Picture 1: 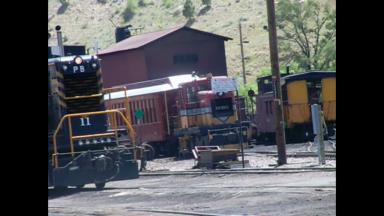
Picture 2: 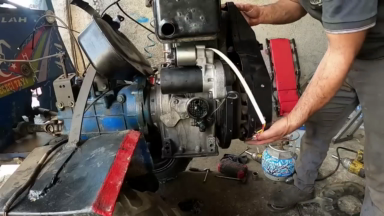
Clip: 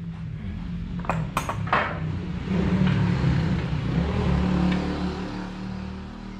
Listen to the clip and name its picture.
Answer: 2